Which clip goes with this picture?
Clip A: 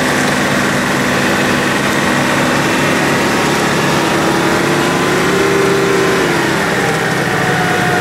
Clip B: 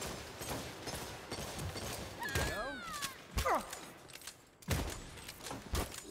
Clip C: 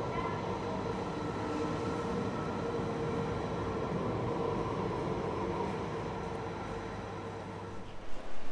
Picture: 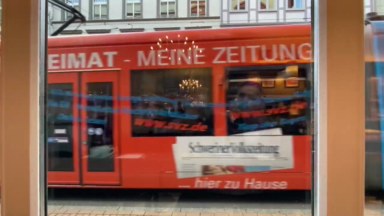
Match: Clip C